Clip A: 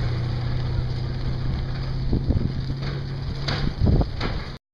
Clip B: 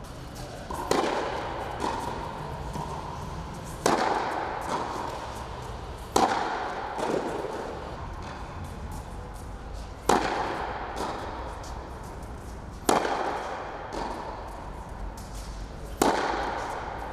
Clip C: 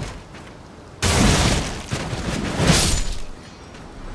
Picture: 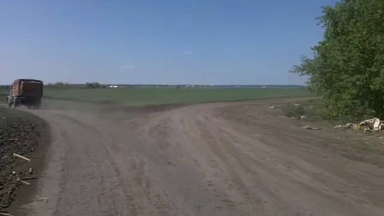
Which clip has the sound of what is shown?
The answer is A